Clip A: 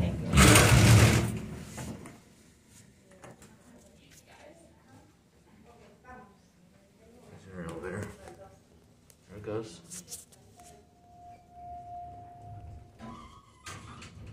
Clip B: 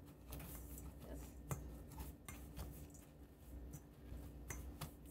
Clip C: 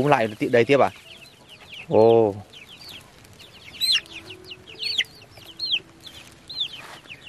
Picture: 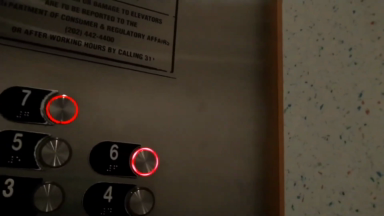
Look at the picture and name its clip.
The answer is A